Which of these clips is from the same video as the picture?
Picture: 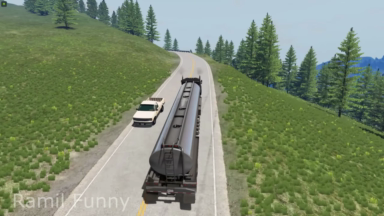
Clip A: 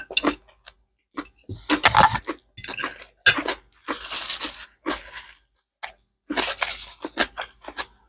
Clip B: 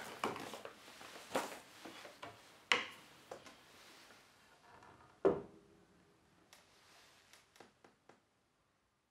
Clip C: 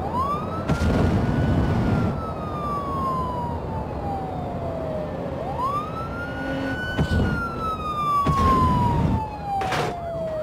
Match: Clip C